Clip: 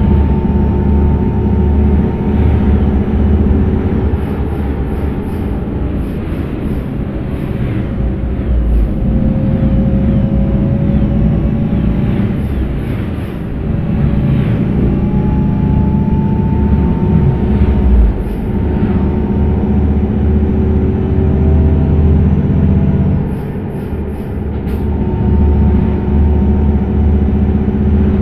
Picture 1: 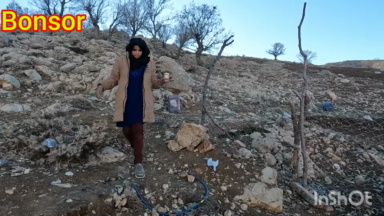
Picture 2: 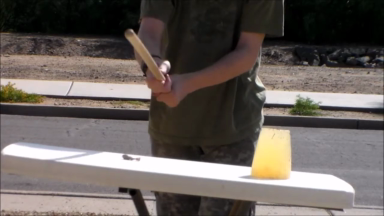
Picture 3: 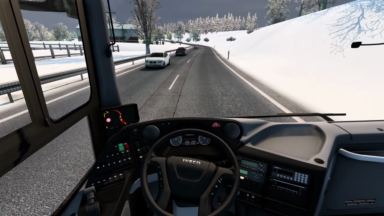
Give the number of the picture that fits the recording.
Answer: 3